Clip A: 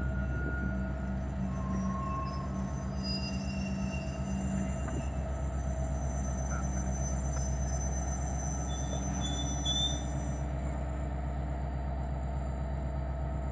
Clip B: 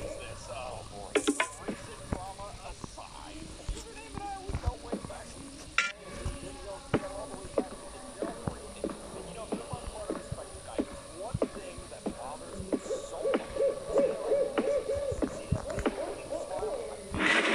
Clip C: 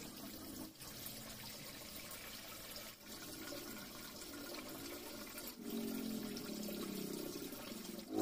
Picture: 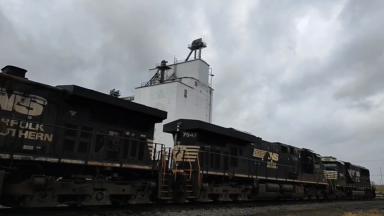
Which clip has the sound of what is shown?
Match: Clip A